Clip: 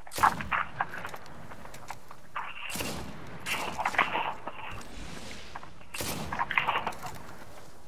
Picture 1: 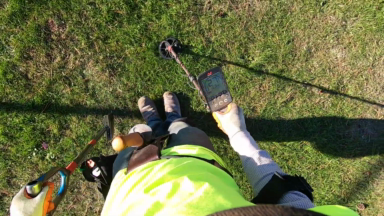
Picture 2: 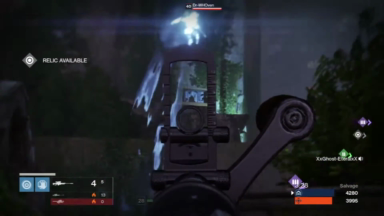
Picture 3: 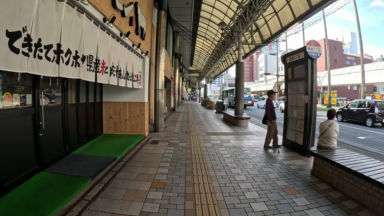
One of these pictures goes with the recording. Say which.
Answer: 2